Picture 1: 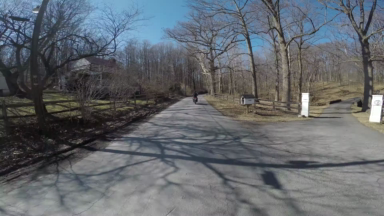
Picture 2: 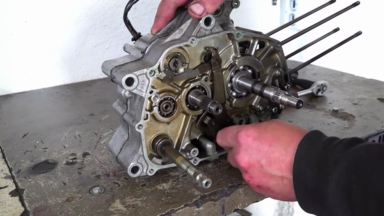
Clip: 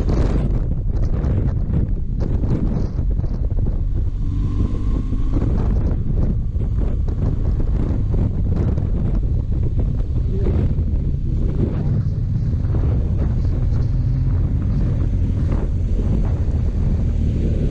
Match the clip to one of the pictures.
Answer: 1